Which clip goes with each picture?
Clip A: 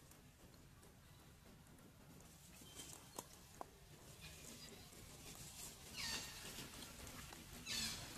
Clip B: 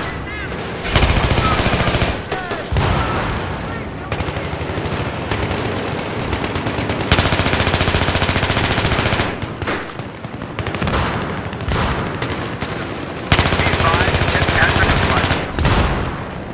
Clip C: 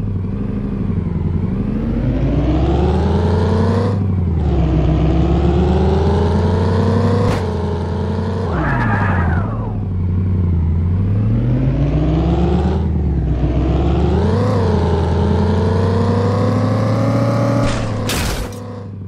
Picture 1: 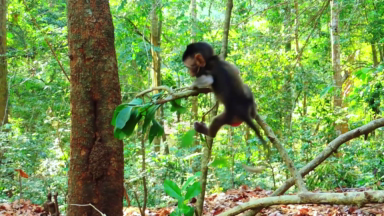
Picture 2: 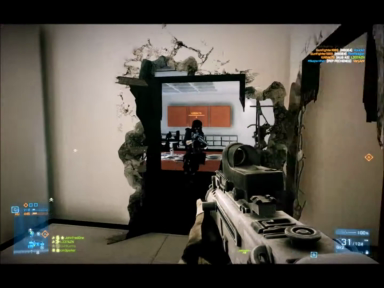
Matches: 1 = A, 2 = B